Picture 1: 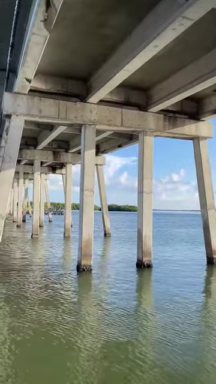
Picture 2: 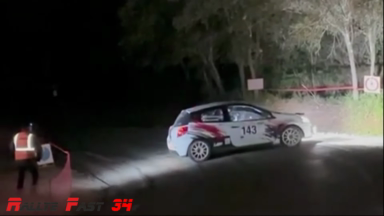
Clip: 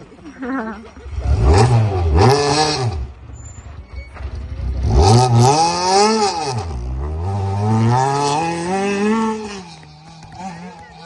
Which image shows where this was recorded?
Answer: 2